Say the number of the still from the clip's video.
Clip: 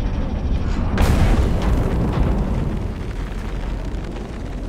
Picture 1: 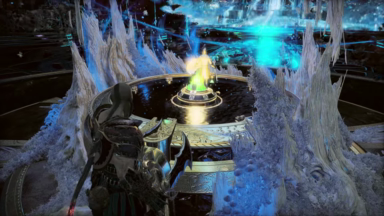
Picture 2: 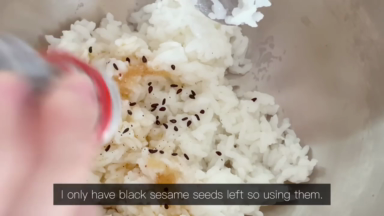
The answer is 1